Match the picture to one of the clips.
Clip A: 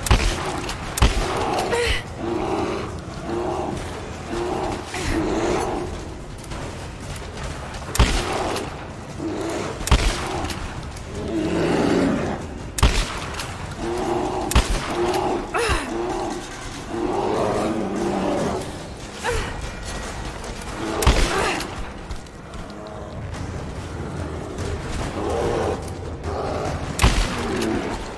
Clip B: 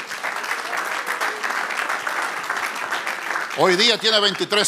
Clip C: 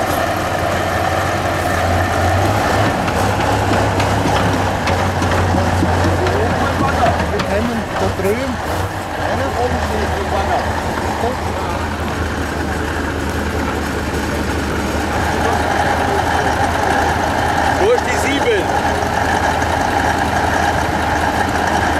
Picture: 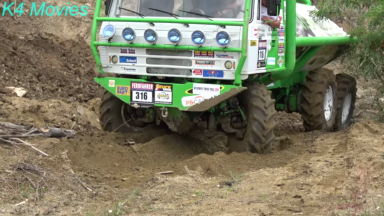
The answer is C